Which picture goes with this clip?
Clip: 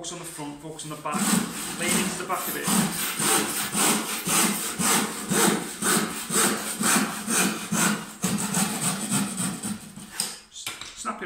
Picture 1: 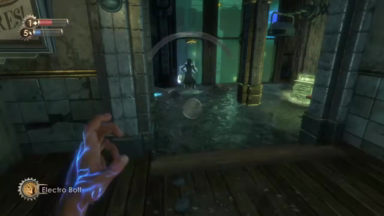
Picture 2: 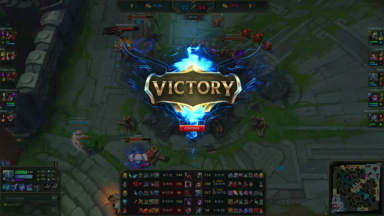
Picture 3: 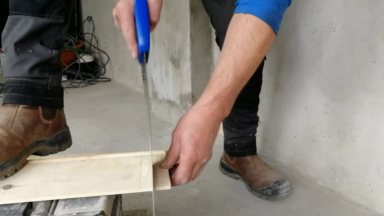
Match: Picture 3